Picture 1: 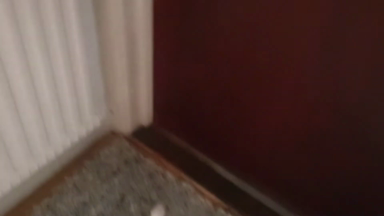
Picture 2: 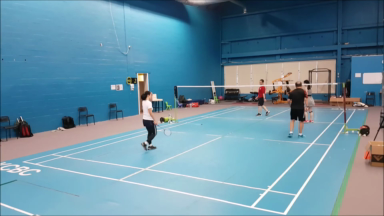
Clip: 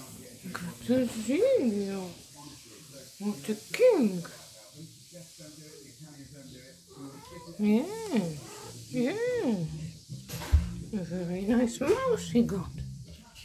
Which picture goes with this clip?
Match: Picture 1